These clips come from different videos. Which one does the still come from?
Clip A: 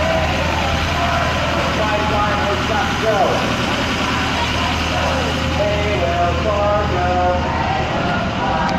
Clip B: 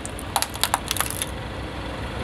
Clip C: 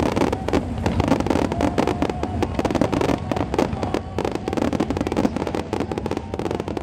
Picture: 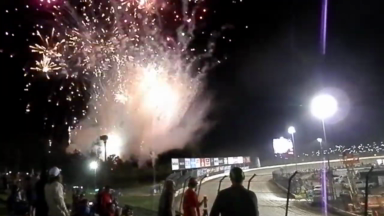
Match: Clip C